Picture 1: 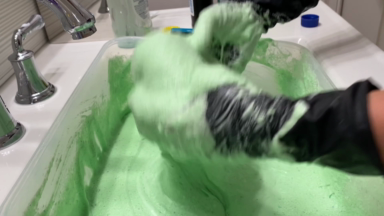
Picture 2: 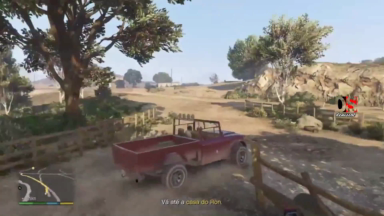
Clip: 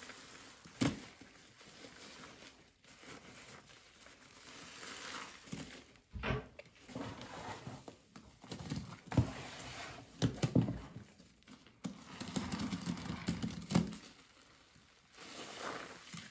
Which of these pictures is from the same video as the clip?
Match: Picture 1